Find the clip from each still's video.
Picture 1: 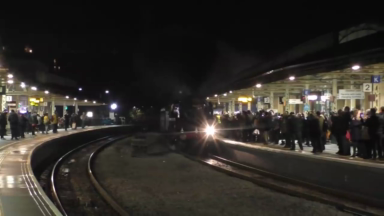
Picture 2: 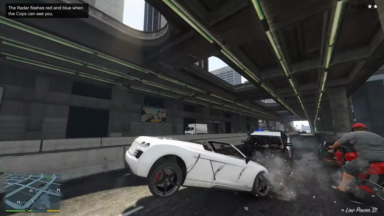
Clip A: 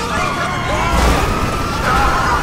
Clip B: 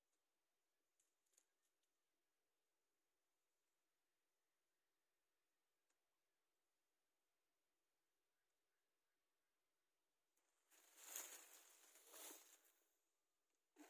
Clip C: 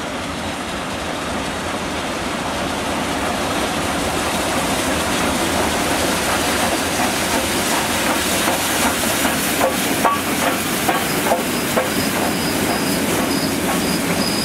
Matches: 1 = C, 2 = A